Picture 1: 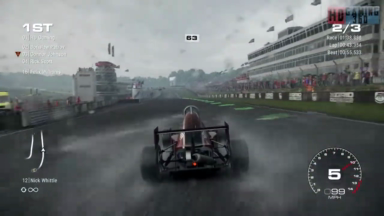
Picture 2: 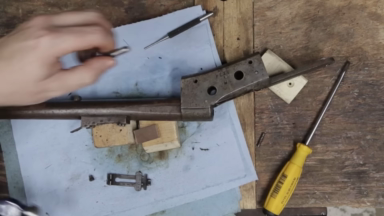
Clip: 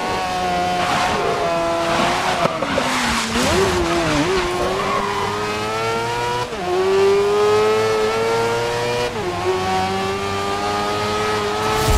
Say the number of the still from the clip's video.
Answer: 1